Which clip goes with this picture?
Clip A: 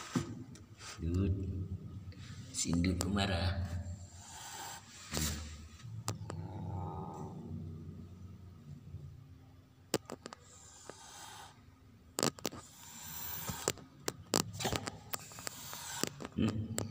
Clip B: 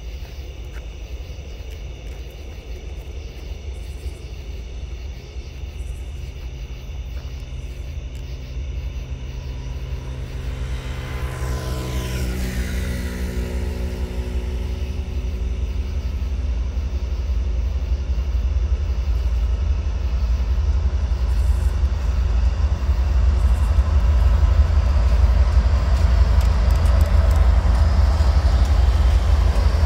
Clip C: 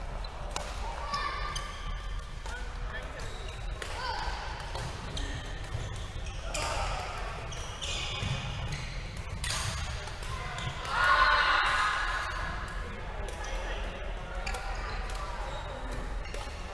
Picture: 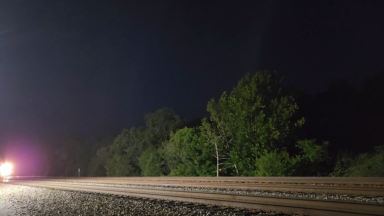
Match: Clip B